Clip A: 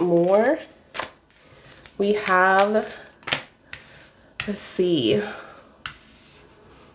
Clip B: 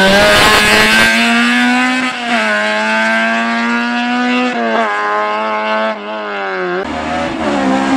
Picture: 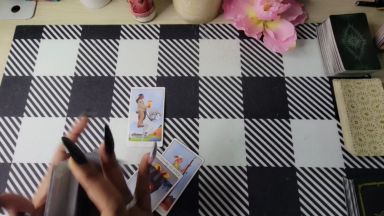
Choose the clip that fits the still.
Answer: A